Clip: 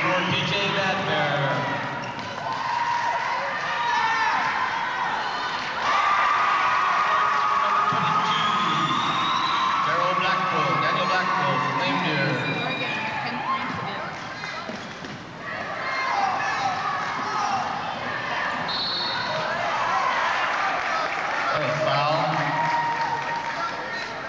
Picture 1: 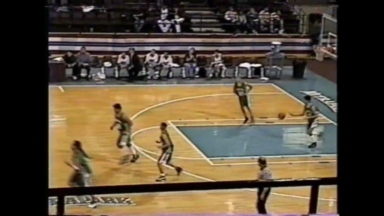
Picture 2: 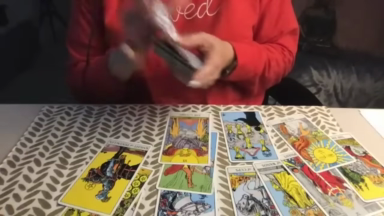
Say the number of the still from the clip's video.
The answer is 1